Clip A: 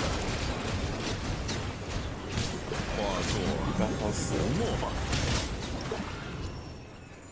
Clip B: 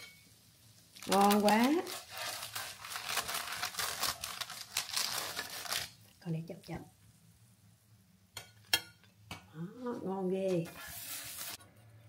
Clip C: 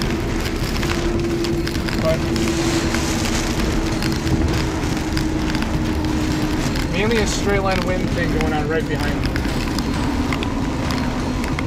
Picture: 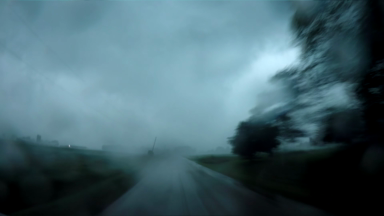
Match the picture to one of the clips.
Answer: C